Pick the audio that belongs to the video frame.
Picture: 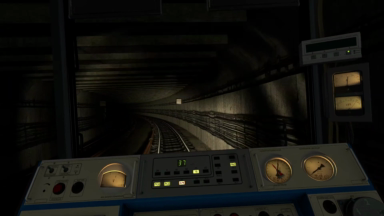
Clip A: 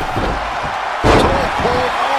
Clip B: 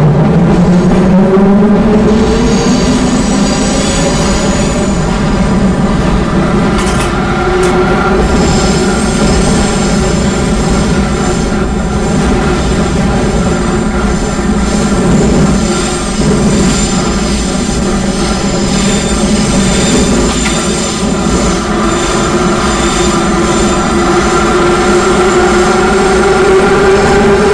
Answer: B